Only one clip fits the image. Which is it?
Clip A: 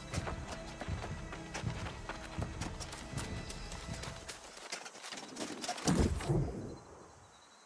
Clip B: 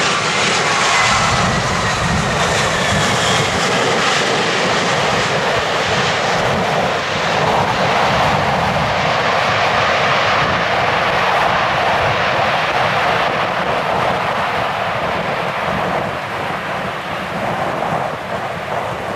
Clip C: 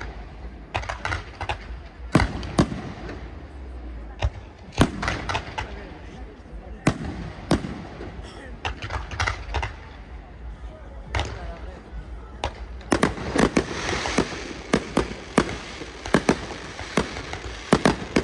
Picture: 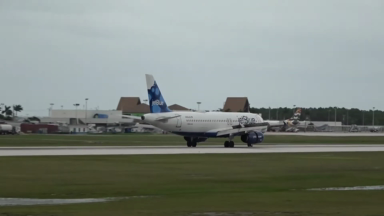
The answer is B